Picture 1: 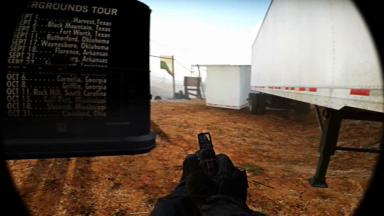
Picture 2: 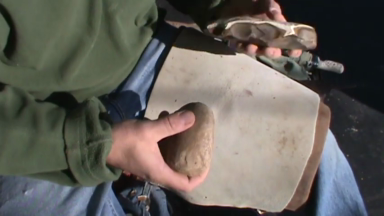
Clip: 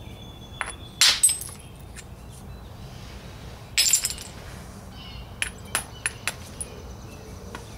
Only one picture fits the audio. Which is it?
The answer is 2